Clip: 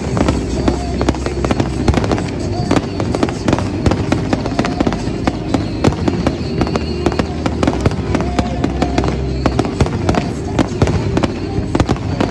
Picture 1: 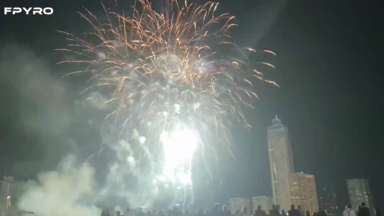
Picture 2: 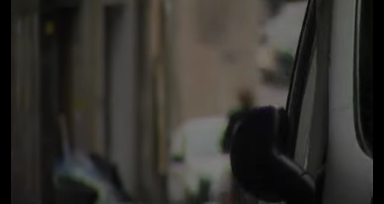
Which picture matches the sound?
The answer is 1